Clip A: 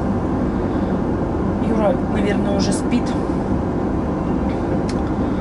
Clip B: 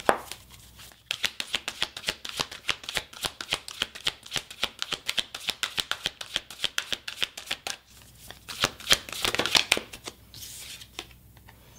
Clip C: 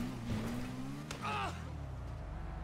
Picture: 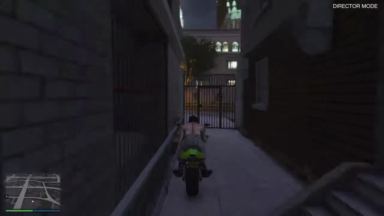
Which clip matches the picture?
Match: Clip C